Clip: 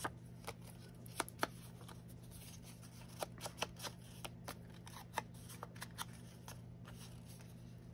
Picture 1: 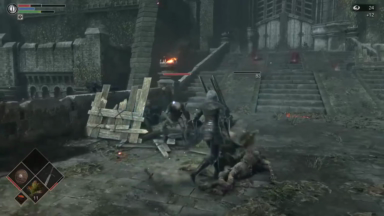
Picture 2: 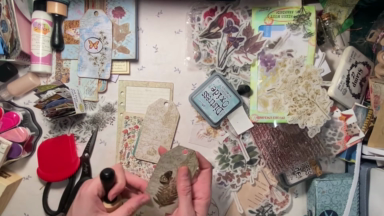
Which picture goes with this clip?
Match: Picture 2